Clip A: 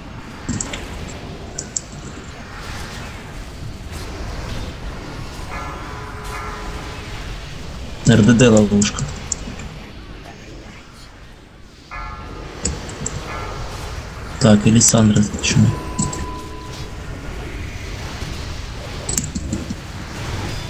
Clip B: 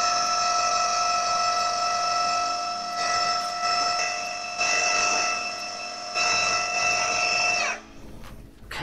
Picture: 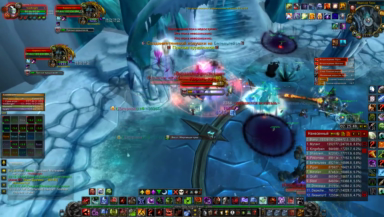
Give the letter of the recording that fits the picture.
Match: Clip A